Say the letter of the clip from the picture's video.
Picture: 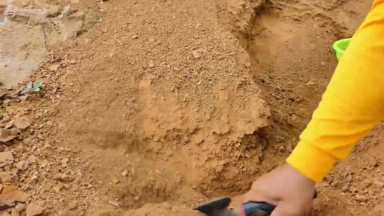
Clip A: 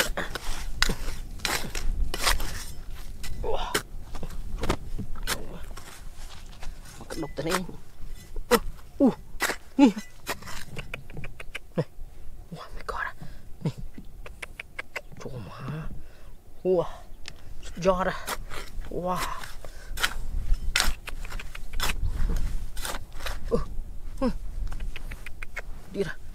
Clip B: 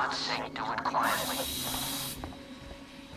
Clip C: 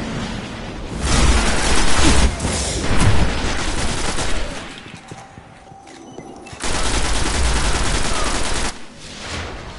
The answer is A